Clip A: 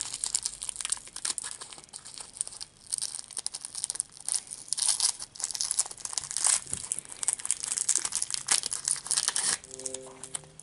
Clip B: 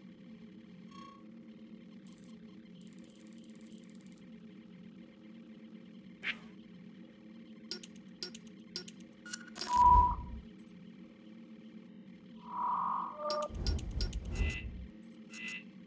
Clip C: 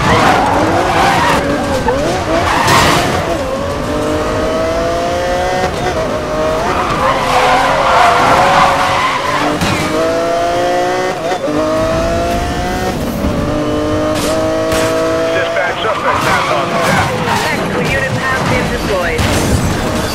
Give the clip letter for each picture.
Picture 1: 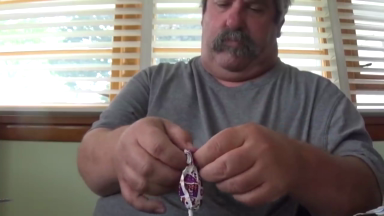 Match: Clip A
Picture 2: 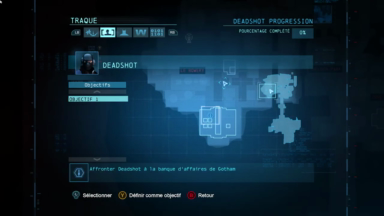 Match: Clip B